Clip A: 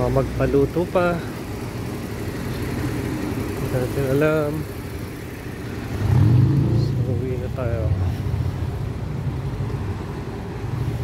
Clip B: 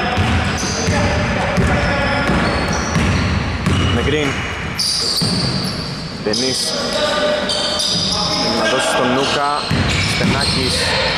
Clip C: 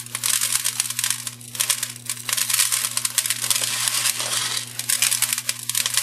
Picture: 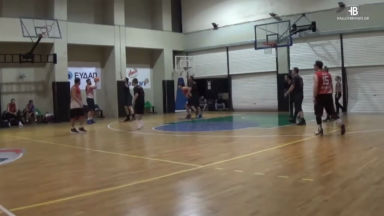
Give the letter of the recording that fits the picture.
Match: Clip B